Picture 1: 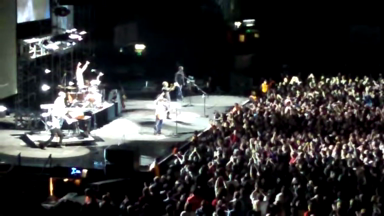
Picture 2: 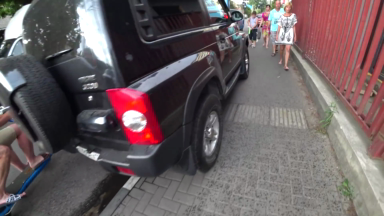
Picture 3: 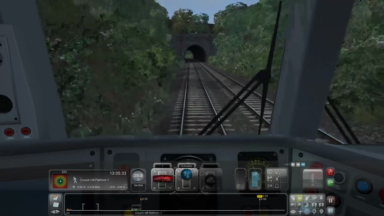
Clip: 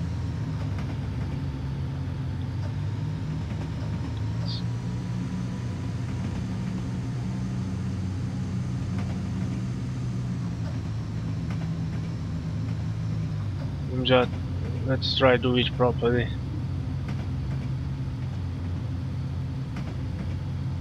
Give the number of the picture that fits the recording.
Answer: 3